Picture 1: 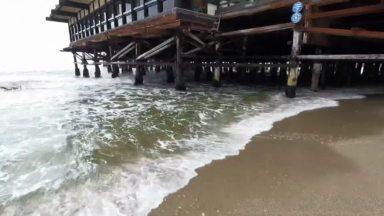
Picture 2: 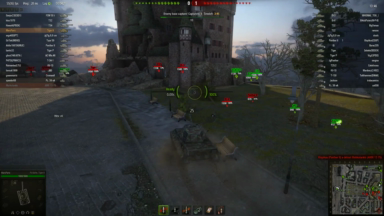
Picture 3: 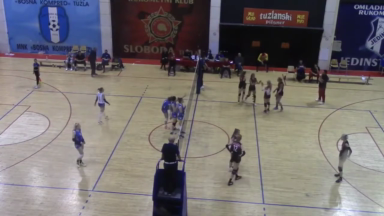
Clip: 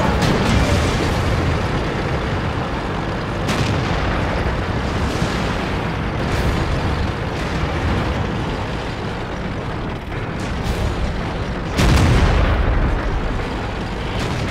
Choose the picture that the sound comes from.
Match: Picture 2